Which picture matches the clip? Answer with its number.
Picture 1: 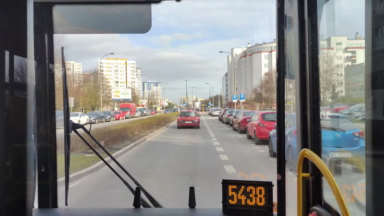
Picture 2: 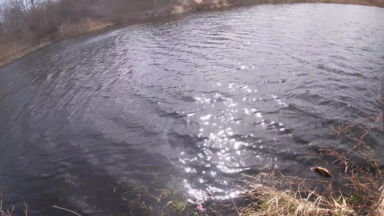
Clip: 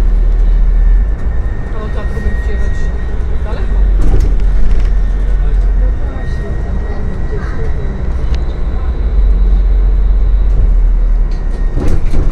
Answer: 1